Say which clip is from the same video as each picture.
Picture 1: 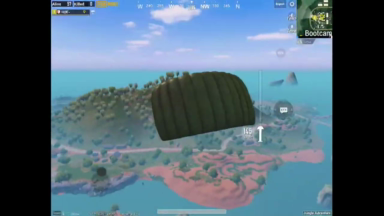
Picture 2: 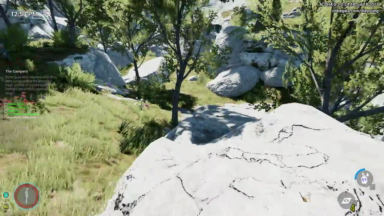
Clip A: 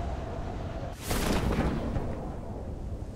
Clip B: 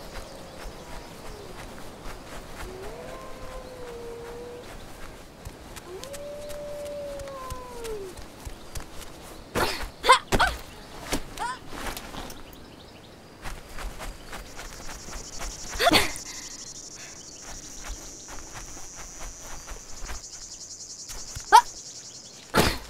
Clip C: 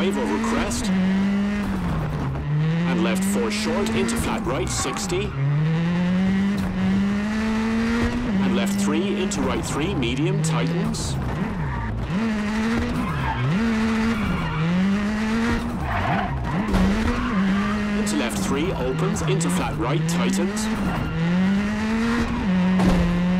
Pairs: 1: A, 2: B